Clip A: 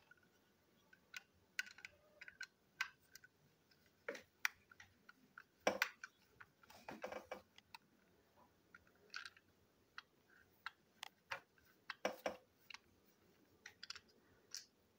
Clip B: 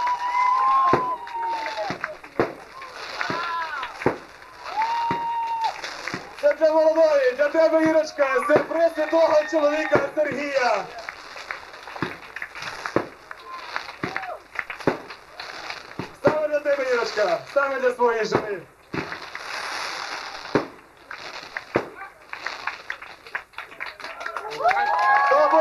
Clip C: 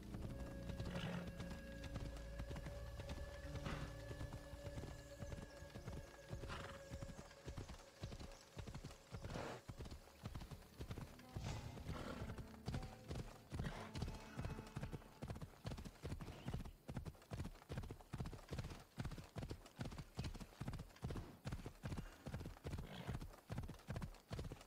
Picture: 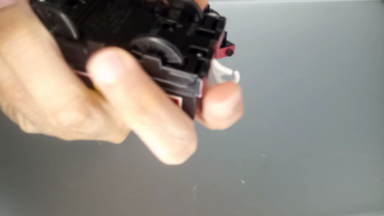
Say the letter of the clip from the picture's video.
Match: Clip A